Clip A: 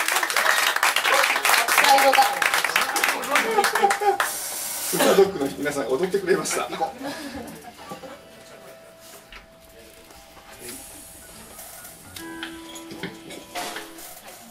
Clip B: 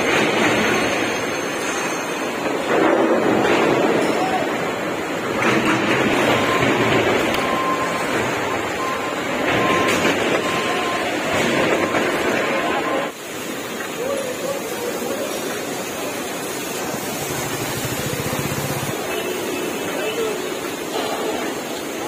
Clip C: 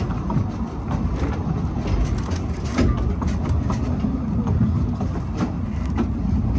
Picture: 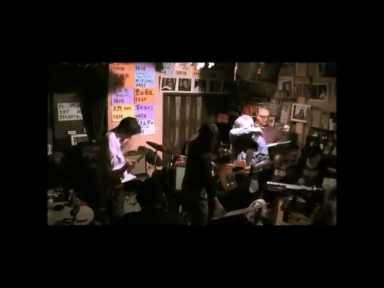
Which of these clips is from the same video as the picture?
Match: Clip A